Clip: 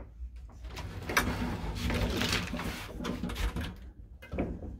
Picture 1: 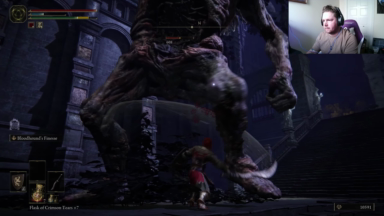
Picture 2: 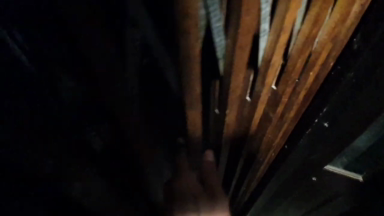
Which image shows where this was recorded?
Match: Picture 2